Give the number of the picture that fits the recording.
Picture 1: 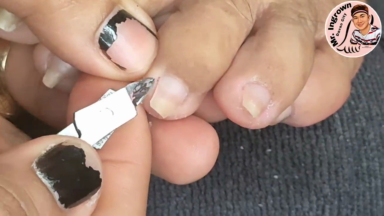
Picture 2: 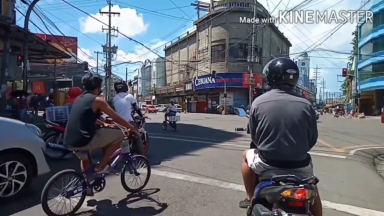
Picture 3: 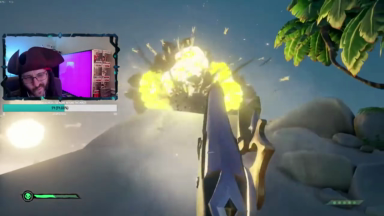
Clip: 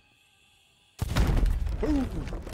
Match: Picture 3